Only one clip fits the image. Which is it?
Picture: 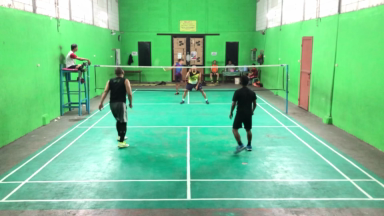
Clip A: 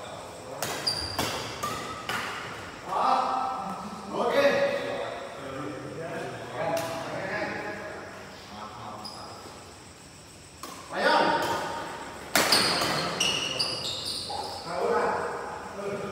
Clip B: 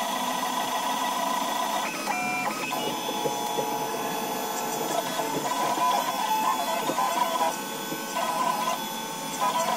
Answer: A